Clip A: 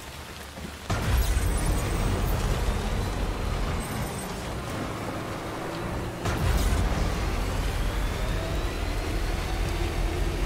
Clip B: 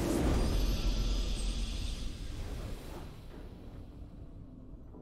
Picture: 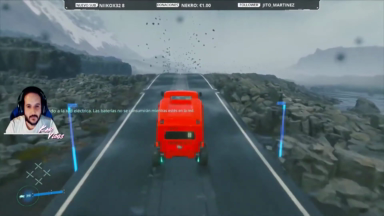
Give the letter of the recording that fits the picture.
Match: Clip A